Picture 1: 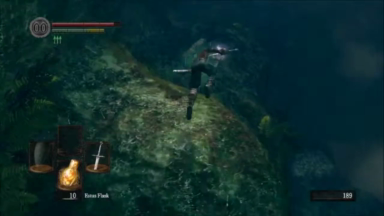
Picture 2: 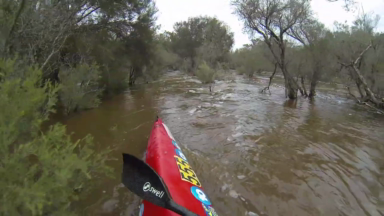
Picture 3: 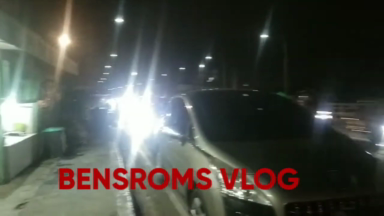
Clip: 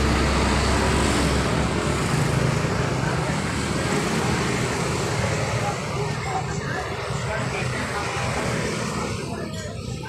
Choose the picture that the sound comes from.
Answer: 3